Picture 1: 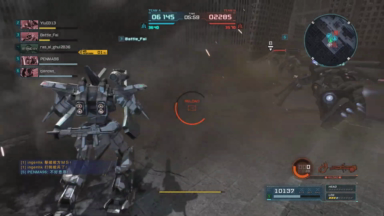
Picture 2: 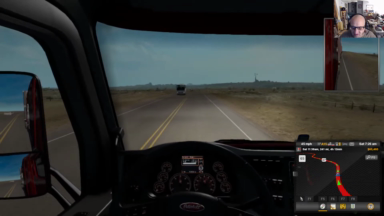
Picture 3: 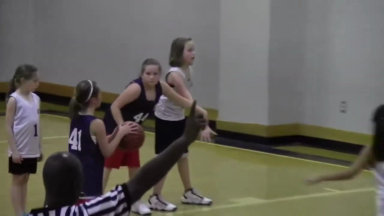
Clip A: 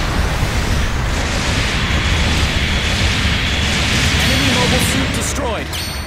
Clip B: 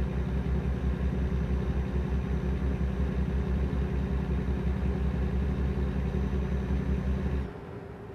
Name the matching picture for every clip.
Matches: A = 1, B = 2